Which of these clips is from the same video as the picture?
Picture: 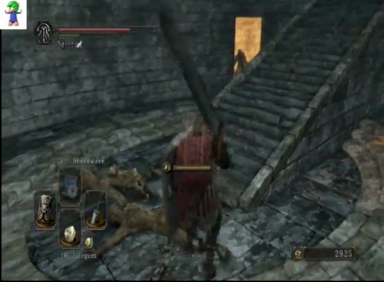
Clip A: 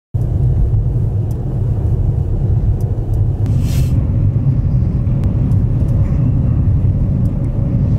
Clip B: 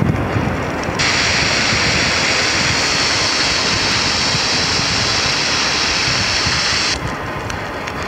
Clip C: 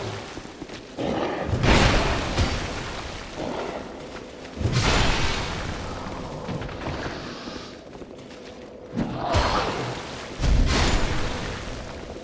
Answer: C